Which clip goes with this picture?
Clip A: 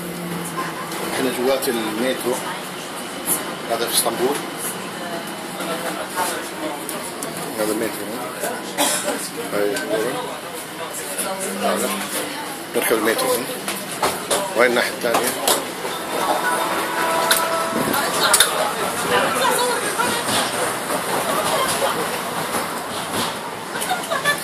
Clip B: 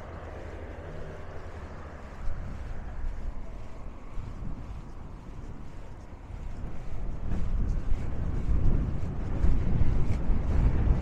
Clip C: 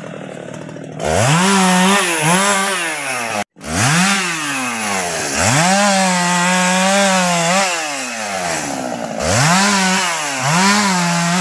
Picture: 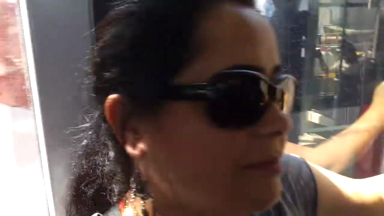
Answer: A